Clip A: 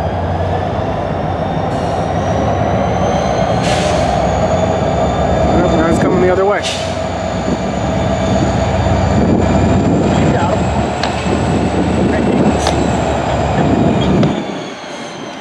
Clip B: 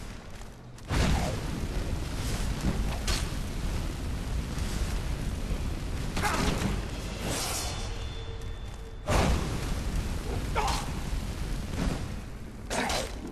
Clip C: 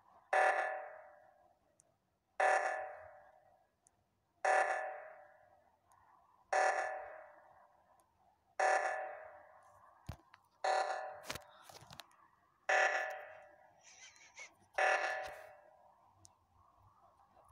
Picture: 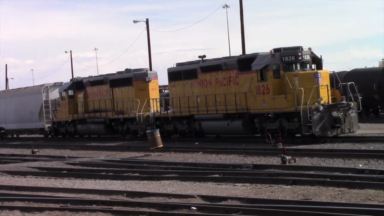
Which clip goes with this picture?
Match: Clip A